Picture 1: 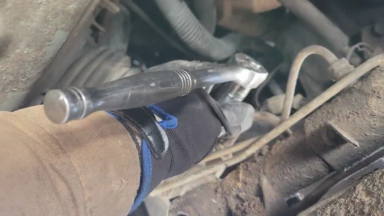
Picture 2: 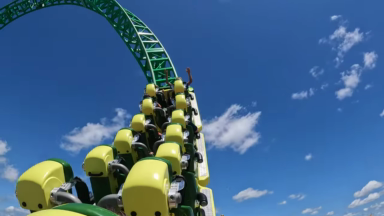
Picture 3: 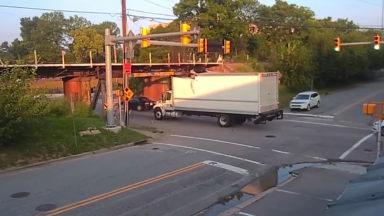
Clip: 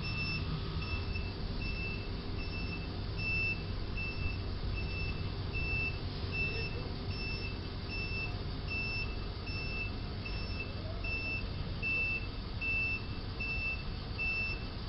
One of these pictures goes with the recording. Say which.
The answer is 3